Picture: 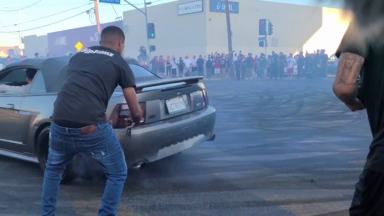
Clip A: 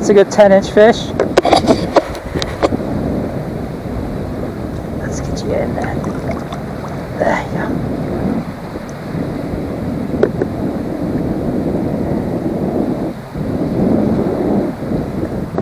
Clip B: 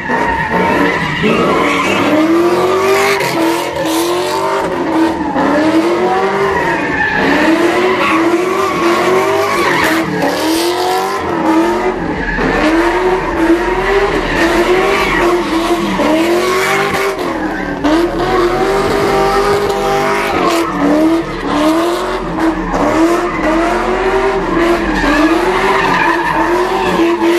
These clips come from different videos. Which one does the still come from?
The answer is B